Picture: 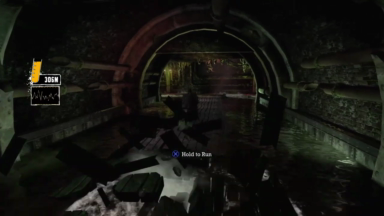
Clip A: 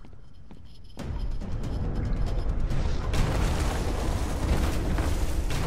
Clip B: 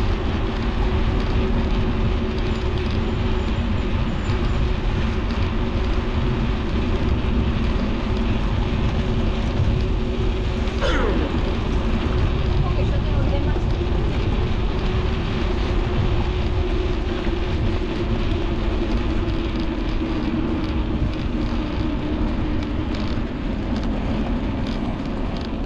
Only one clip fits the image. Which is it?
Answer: A